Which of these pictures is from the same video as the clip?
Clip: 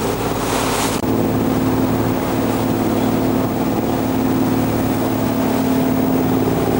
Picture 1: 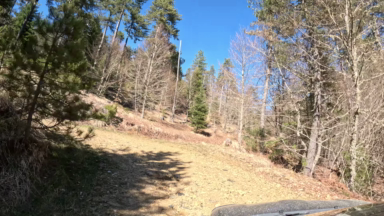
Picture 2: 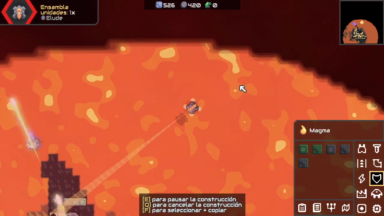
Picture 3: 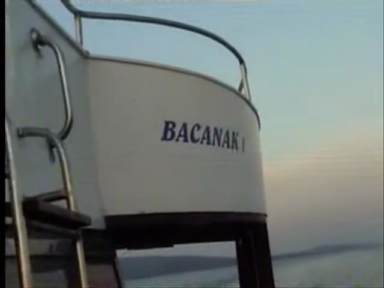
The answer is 3